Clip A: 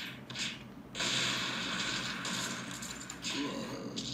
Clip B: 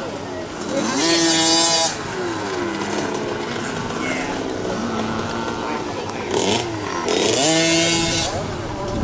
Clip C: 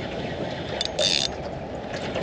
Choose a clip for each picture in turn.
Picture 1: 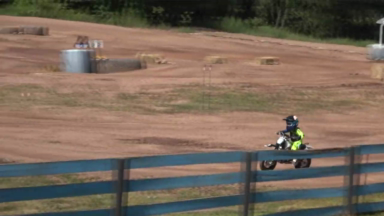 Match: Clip B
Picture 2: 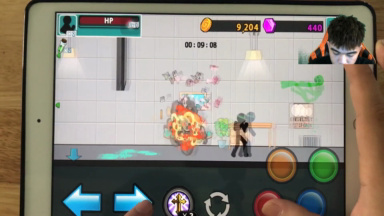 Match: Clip A